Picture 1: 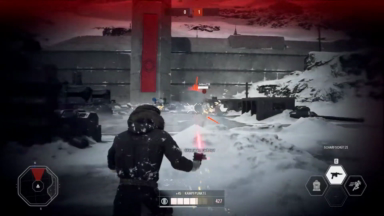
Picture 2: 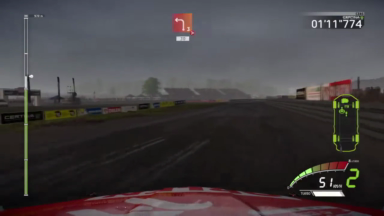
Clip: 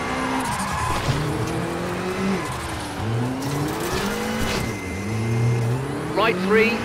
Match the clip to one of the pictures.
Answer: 2